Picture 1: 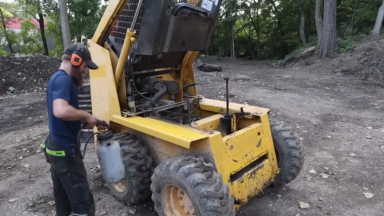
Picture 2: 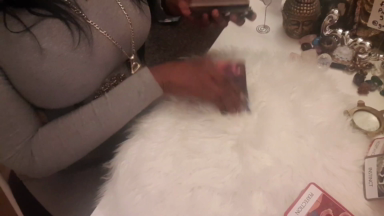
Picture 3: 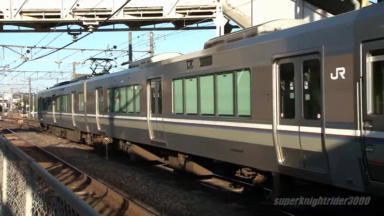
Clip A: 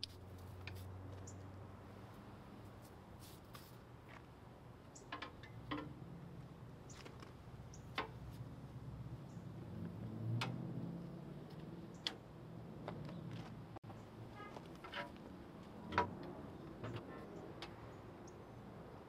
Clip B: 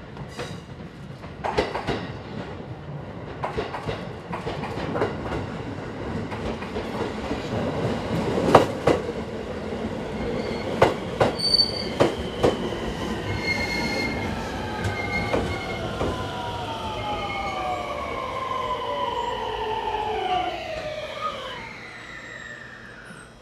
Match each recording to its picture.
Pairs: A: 1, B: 3